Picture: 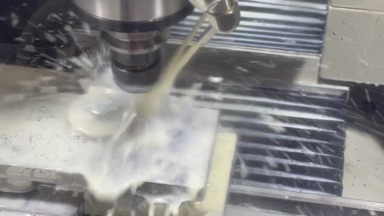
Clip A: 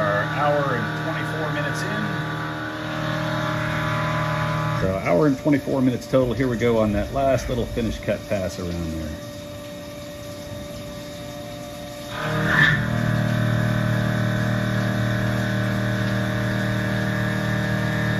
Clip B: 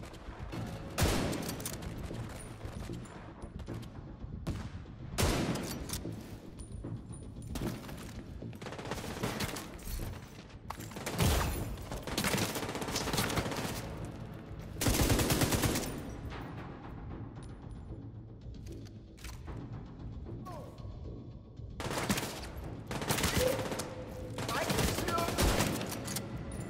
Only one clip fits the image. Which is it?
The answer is A